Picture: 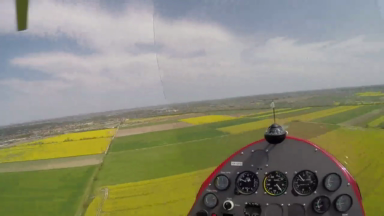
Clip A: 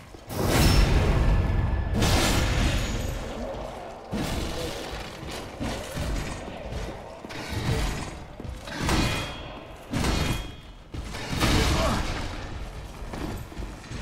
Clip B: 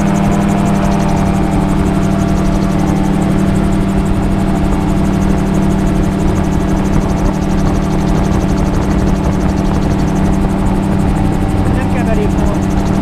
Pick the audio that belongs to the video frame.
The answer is B